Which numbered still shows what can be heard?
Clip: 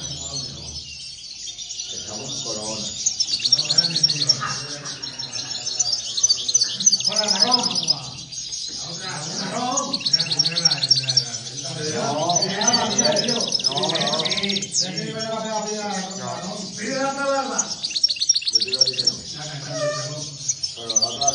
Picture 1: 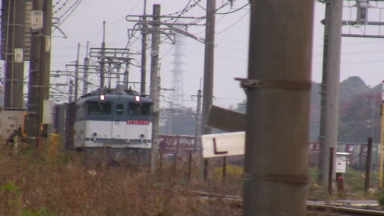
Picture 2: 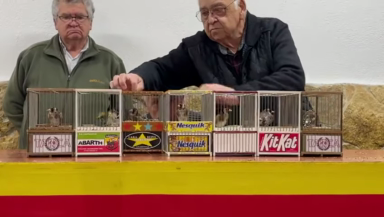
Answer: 2